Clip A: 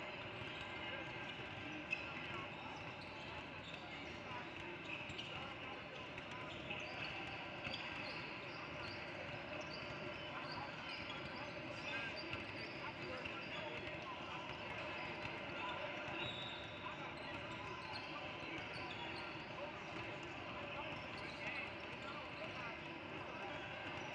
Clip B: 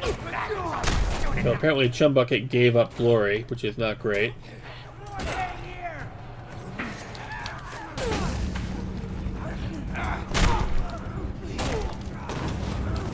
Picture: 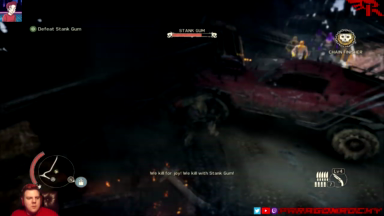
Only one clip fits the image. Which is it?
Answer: B